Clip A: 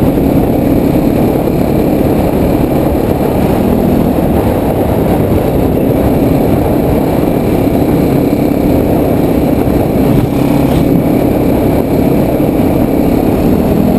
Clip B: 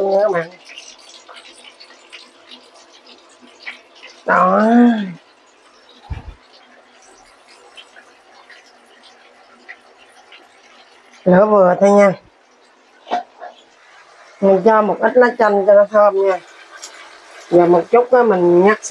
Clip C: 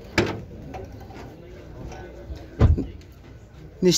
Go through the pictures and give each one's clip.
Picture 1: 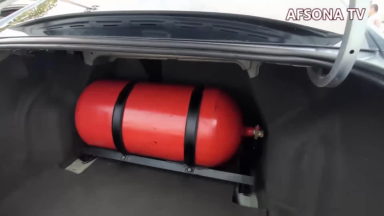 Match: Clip C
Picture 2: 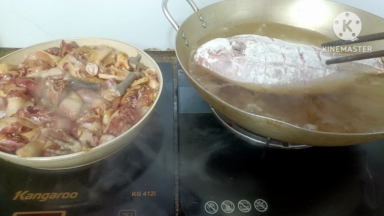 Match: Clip B